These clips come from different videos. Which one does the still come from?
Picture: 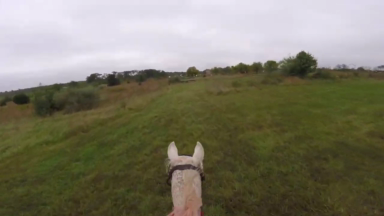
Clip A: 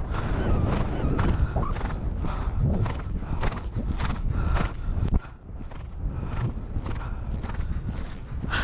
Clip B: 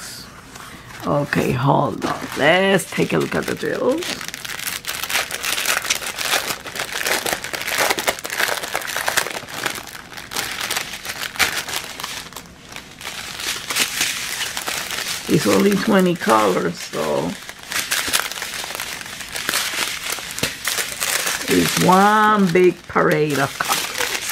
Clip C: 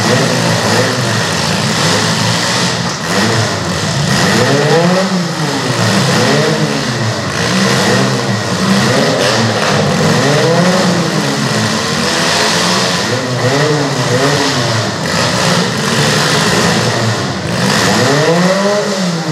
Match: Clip A